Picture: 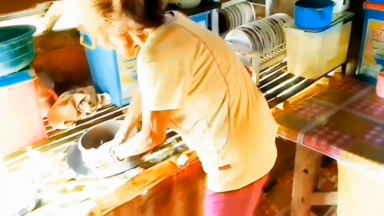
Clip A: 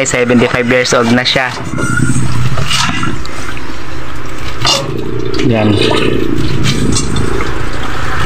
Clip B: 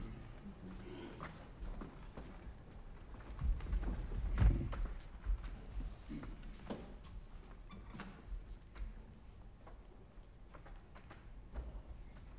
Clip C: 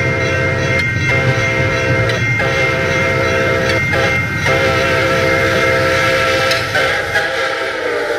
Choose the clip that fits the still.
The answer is A